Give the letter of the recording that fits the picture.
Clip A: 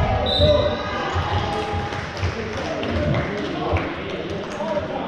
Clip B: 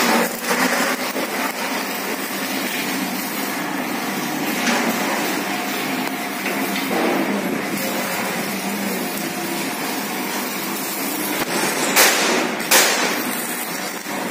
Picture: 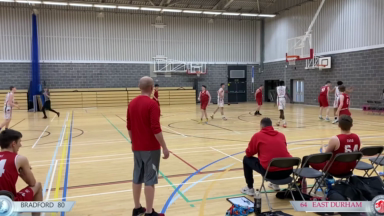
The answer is A